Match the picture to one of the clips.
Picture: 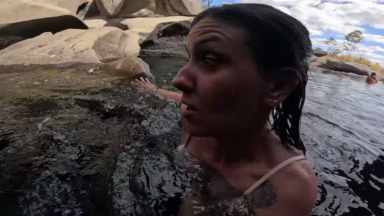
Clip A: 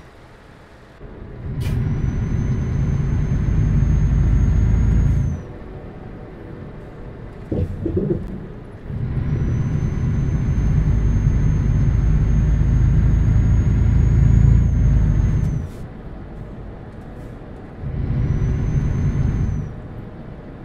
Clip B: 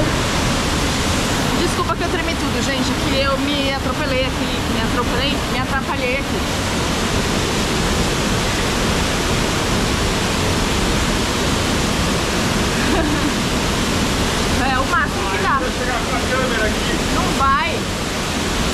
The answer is B